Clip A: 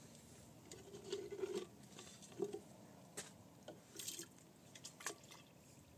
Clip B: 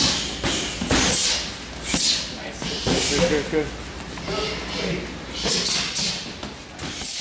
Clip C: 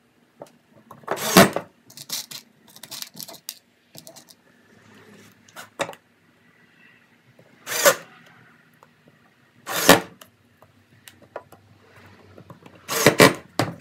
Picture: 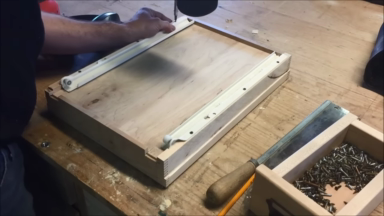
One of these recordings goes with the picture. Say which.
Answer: C